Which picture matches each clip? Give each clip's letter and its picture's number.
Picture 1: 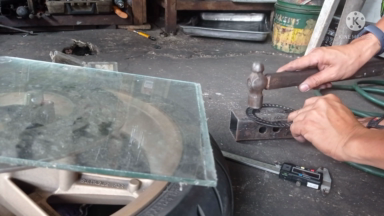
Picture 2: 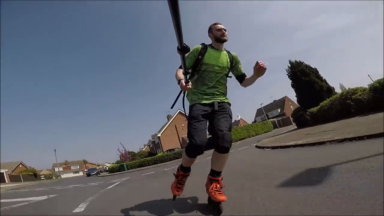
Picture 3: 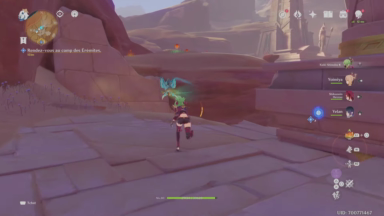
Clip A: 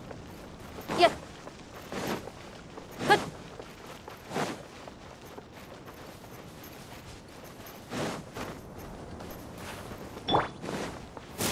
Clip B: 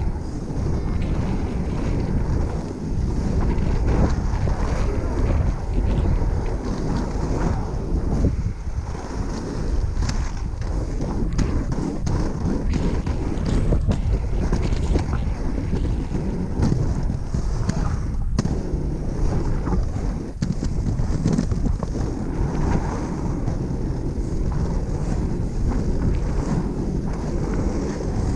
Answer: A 3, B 2